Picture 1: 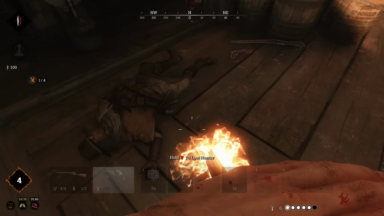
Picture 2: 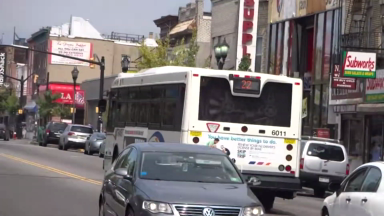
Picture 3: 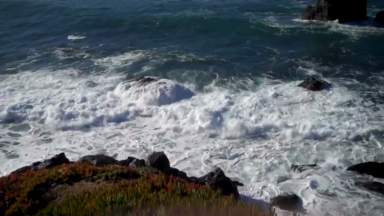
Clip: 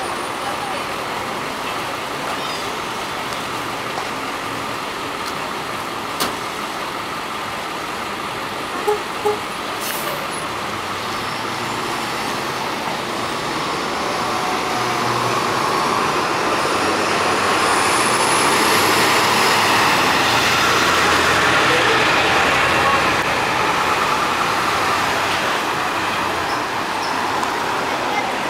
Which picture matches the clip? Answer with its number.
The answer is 2